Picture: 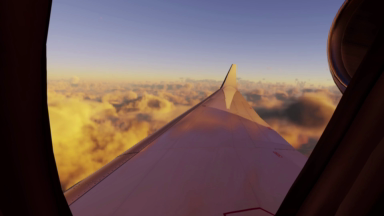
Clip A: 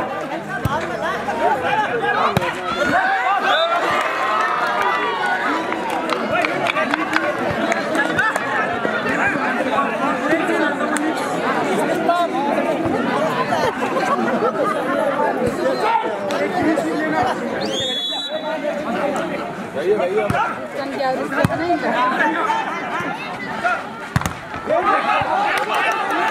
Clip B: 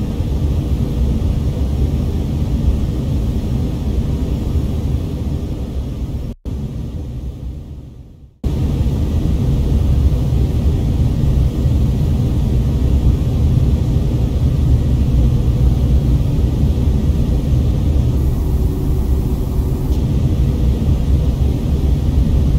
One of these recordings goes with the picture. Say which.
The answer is B